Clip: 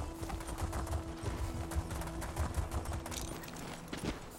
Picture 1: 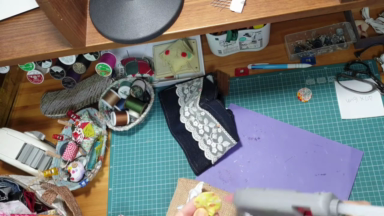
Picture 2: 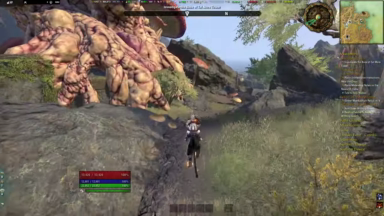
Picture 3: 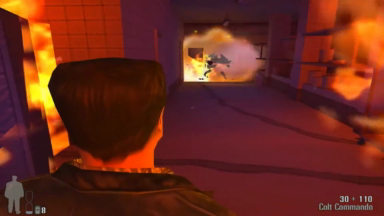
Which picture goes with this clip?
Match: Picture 2